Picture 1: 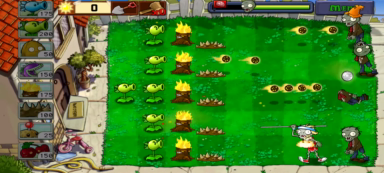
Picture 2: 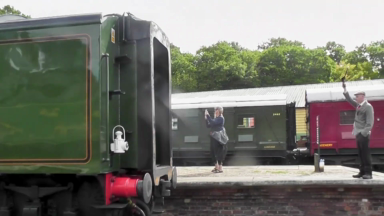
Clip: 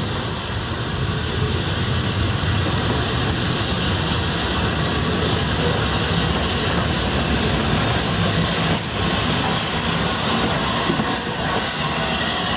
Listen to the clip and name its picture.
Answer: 2